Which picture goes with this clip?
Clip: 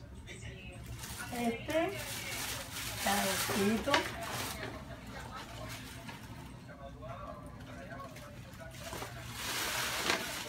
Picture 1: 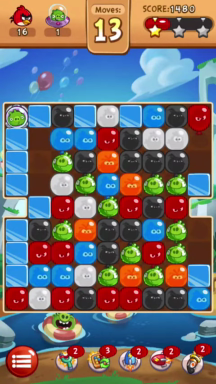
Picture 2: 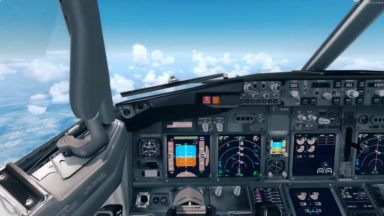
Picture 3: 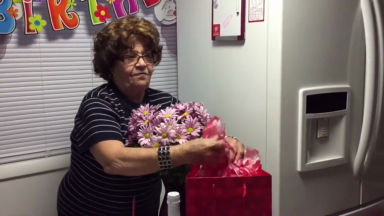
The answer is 3